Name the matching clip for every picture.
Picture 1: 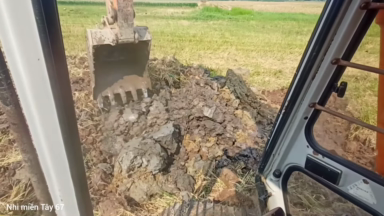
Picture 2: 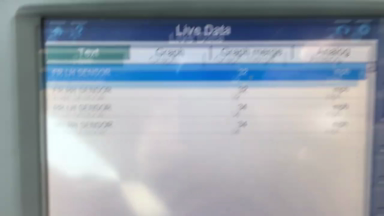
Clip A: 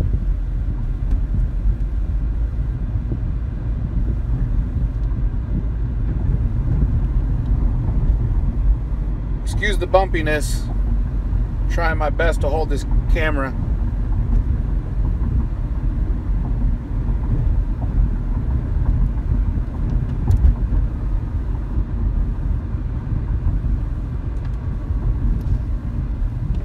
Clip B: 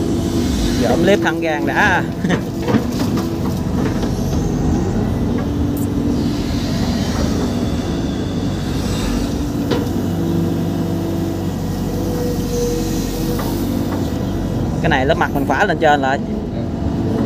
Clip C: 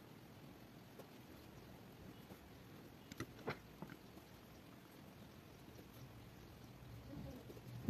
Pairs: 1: B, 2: A